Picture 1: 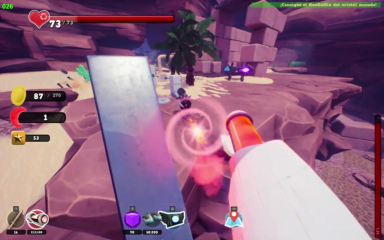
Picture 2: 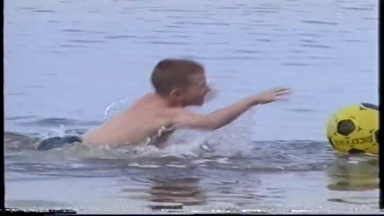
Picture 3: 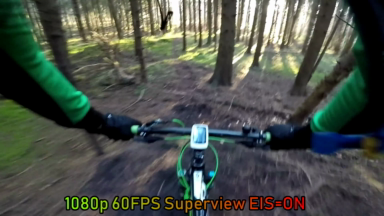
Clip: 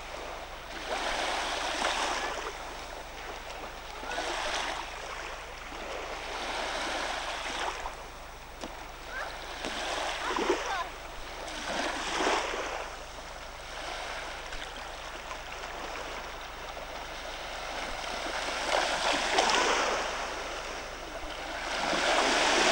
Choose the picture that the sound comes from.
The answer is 2